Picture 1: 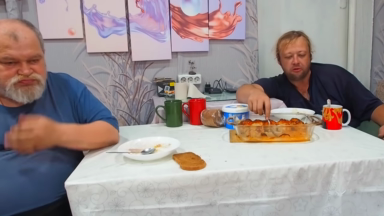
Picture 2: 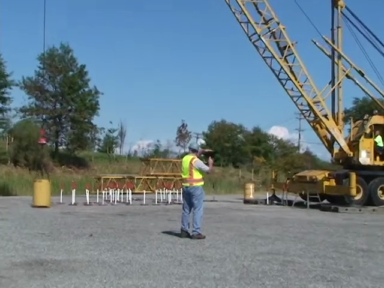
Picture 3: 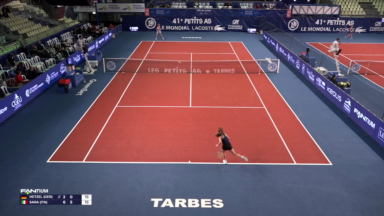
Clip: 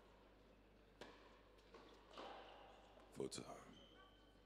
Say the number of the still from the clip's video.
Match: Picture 3